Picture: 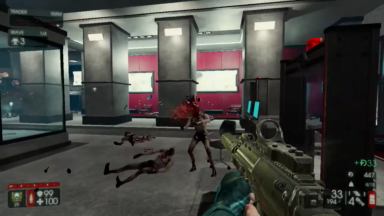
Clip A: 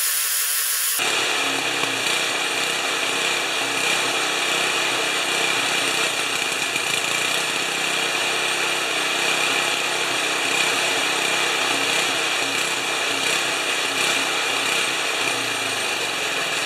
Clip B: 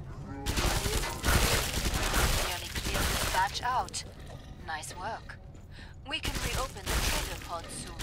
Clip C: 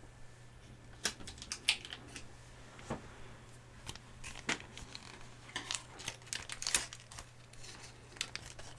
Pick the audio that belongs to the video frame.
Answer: B